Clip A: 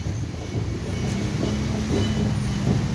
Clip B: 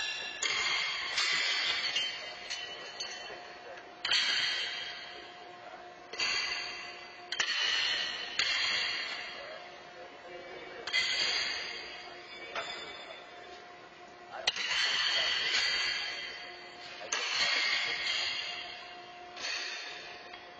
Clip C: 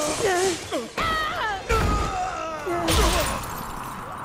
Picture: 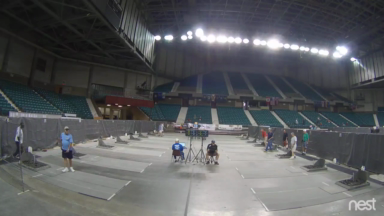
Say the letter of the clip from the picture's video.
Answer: B